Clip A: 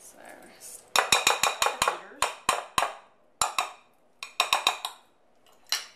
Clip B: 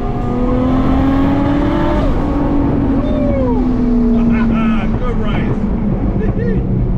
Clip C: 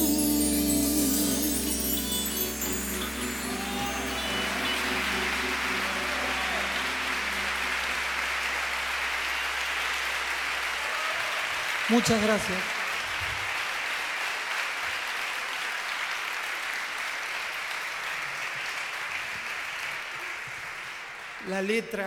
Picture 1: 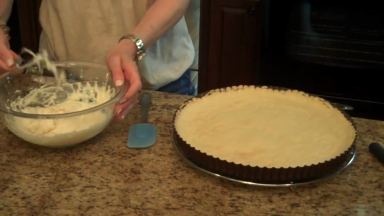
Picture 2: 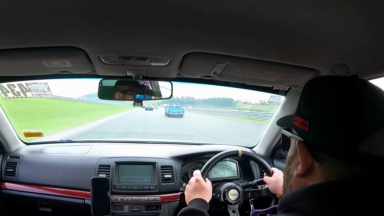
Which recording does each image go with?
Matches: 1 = A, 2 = B